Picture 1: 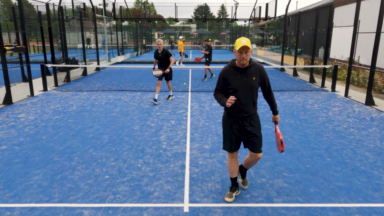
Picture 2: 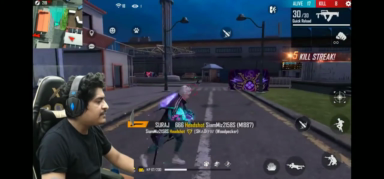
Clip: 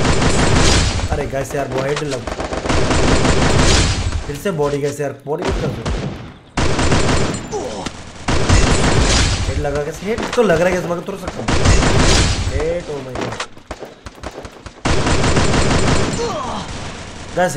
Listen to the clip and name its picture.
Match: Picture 2